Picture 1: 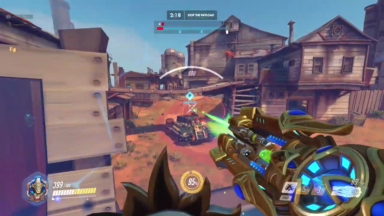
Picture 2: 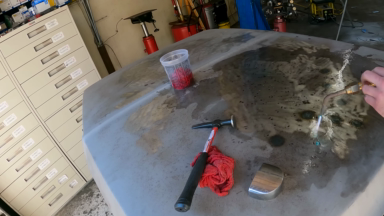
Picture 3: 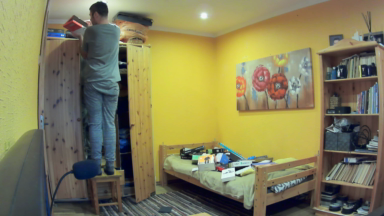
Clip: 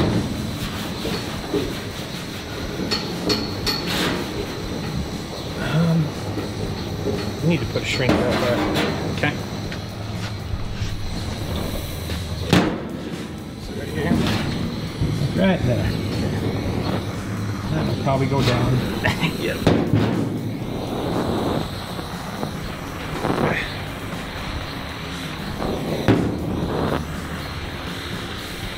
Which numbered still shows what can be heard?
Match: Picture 2